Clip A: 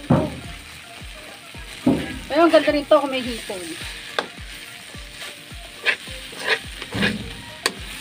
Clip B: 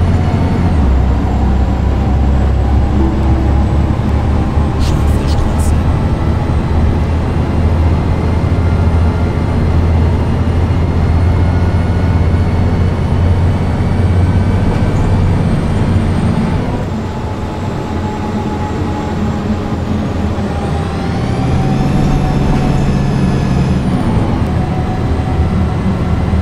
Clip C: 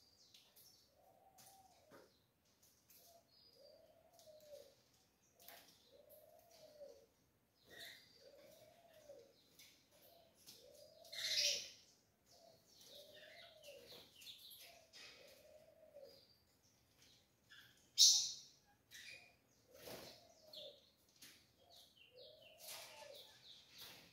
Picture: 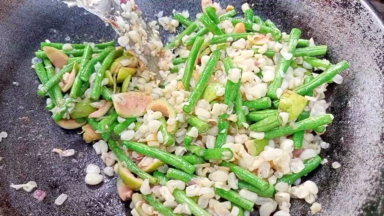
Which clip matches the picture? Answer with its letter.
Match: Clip A